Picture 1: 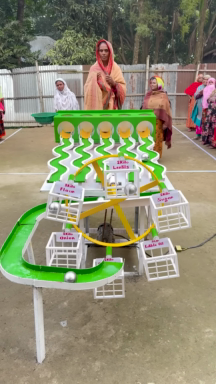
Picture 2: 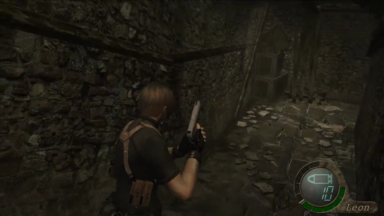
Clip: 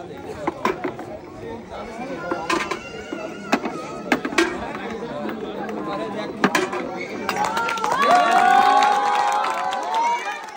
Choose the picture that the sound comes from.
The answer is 1